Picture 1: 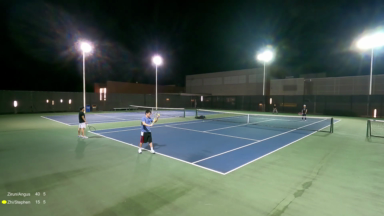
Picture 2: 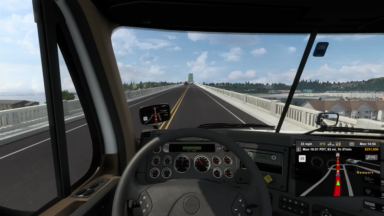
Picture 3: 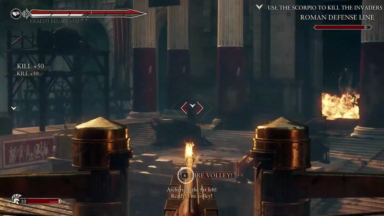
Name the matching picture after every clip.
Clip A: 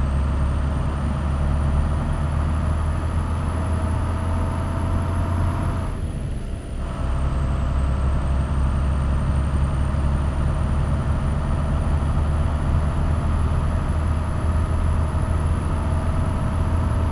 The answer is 2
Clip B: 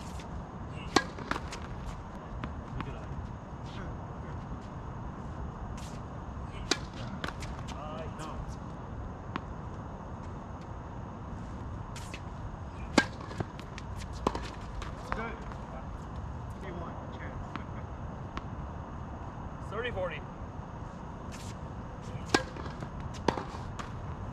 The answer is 1